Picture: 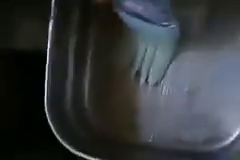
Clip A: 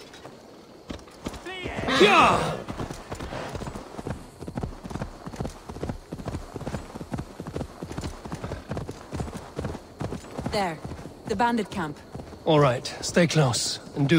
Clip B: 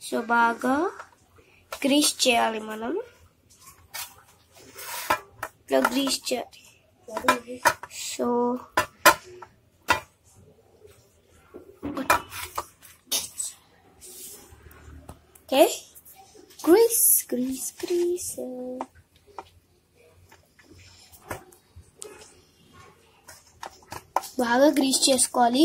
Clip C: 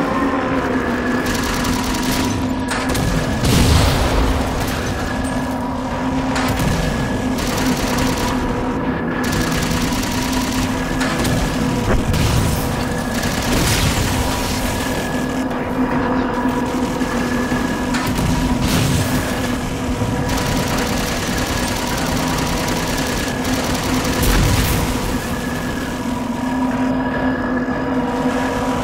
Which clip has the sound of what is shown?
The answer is B